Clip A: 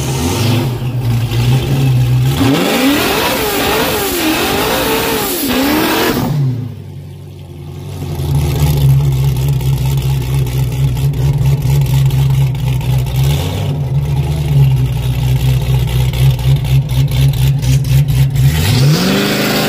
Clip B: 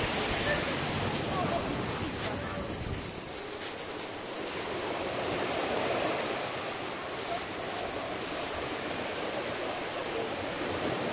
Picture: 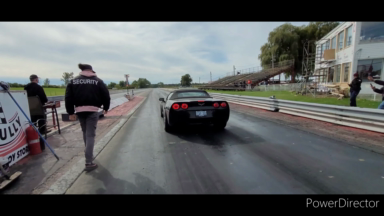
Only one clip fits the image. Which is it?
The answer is A